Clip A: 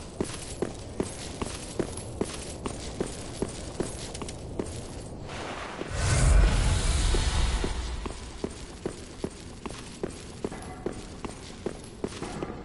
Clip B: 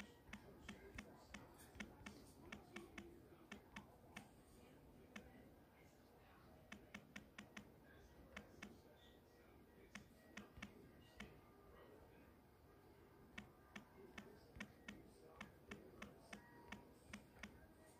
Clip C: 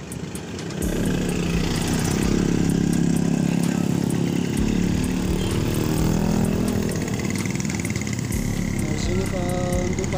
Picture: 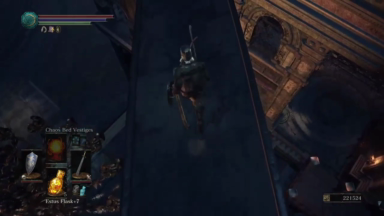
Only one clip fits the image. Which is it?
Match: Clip A